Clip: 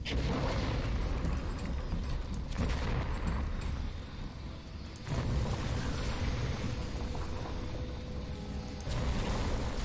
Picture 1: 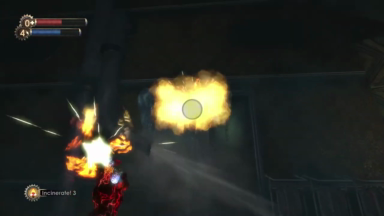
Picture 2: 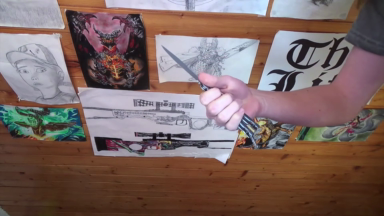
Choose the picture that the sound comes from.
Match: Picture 1